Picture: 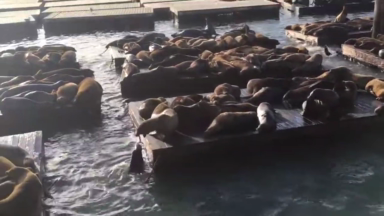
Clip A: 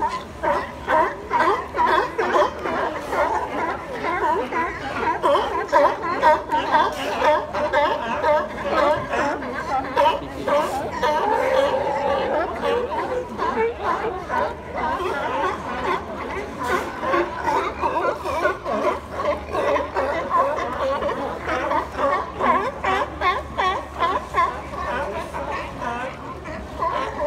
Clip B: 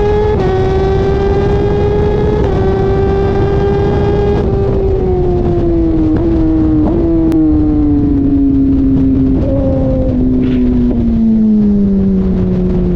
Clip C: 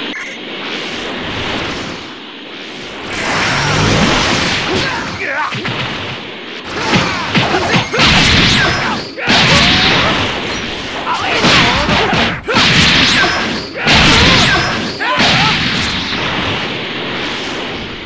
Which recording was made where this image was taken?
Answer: A